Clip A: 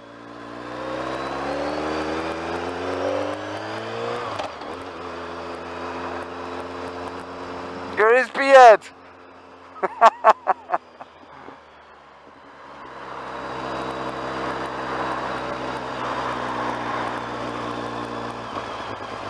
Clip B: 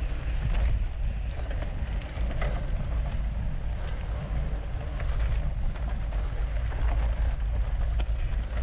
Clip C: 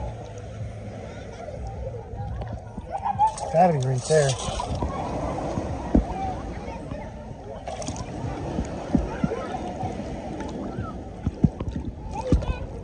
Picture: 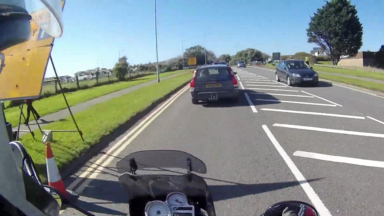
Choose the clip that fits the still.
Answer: A